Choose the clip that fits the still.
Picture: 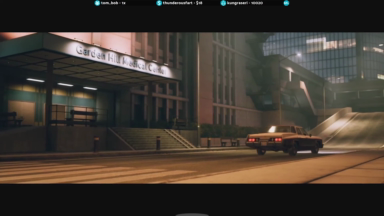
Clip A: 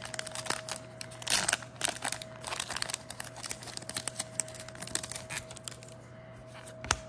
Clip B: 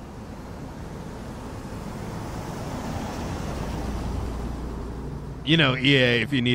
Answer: B